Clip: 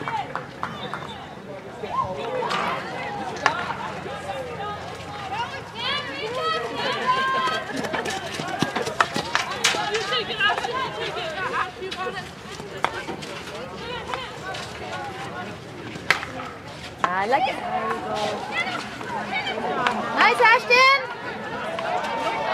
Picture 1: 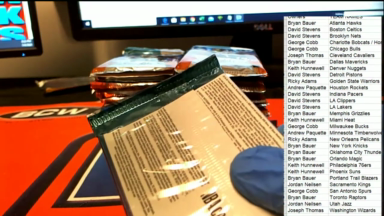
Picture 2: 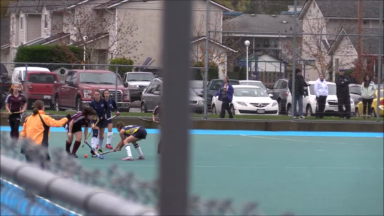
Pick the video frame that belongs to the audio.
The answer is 2